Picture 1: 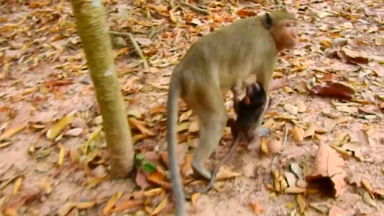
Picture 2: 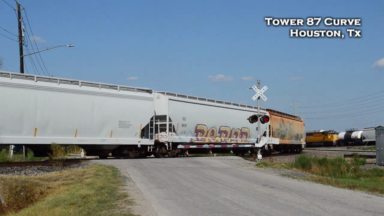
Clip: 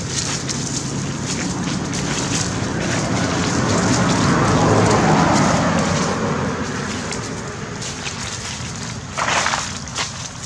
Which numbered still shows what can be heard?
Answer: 1